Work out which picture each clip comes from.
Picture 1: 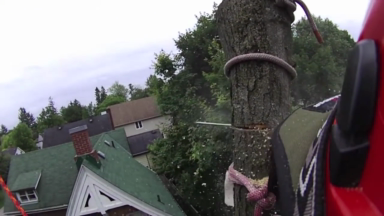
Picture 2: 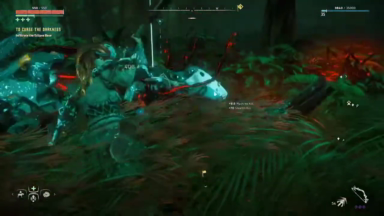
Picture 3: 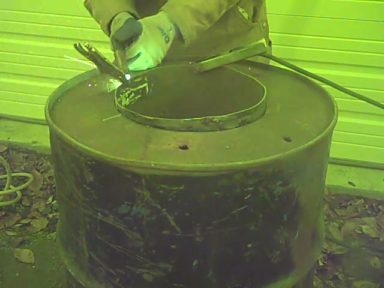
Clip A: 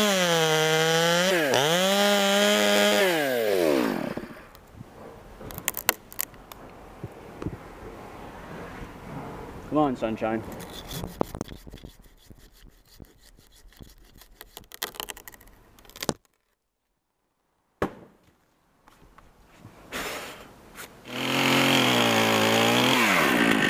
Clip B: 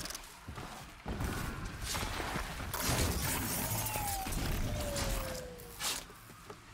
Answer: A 1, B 2